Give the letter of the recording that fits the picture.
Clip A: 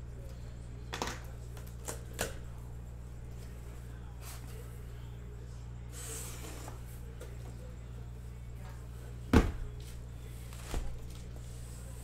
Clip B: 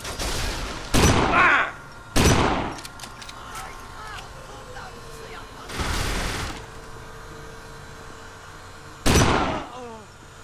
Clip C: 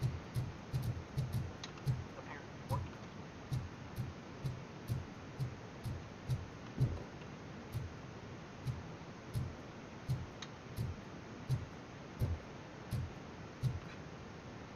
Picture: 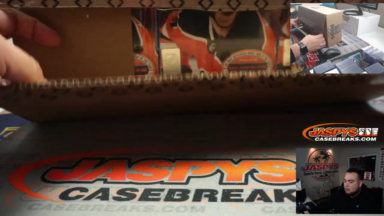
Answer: A